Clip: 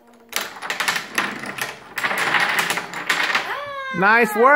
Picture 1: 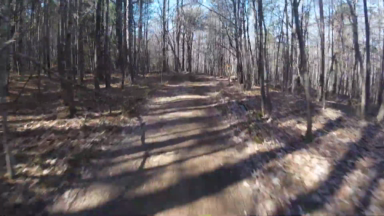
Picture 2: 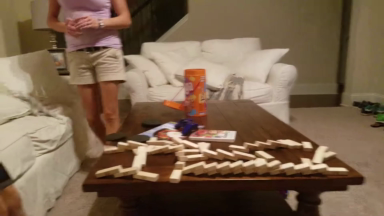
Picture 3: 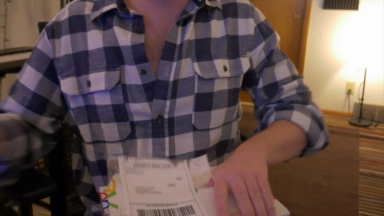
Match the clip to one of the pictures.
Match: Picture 2